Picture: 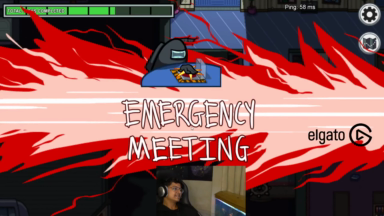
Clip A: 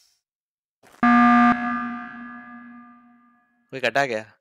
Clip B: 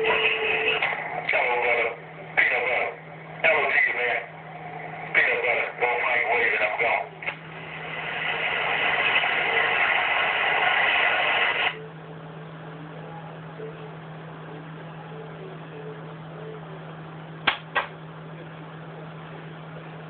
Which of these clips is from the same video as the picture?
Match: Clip A